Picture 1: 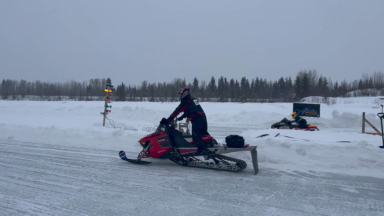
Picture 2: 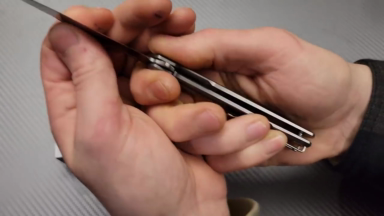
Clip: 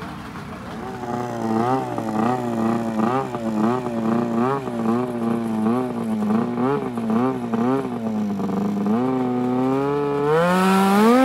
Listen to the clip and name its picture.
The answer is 1